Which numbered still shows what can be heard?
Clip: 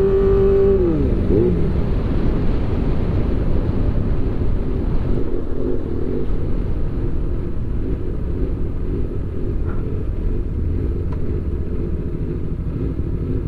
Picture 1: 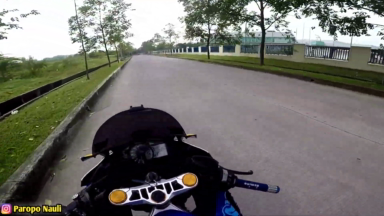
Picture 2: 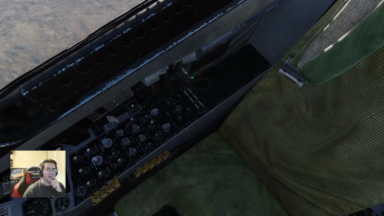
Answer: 1